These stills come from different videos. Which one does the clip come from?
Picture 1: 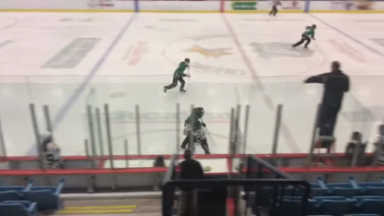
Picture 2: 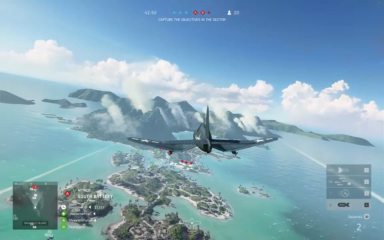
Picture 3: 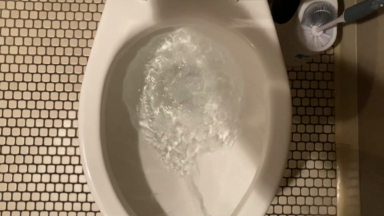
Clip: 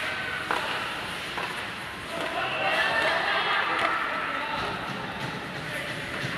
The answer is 1